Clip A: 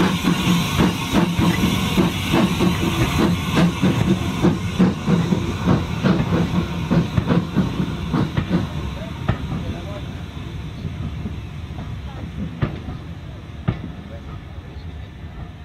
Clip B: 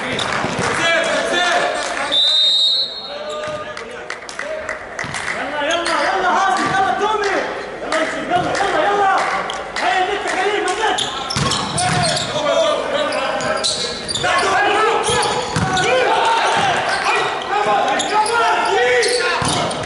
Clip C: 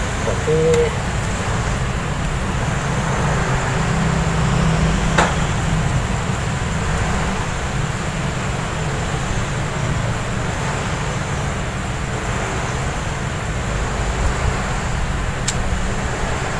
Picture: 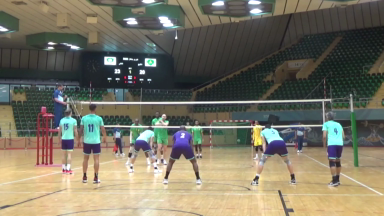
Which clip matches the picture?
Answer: B